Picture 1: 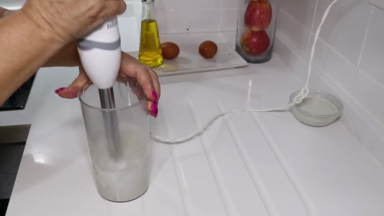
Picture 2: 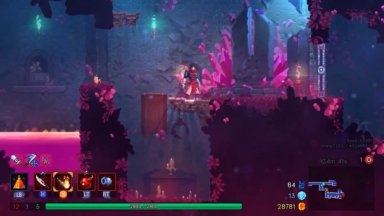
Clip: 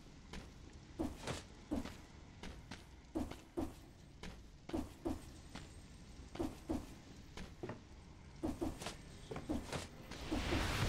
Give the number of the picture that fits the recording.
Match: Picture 2